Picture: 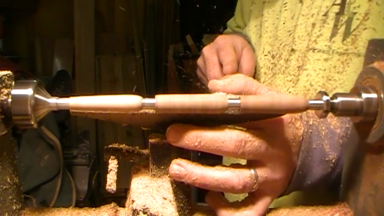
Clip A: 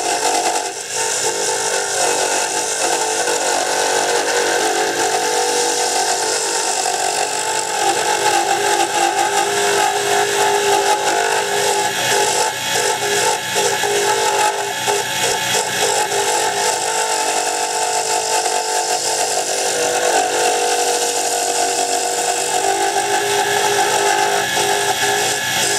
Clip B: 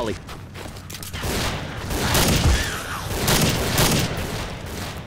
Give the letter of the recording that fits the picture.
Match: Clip A